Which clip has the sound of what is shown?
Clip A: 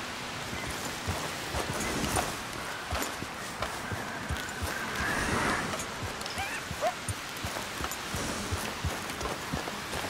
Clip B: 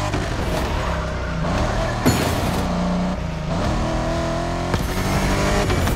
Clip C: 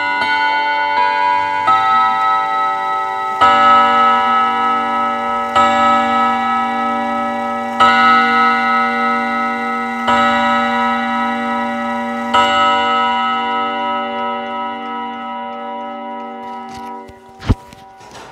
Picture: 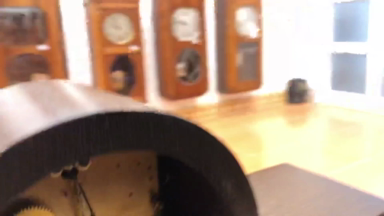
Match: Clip C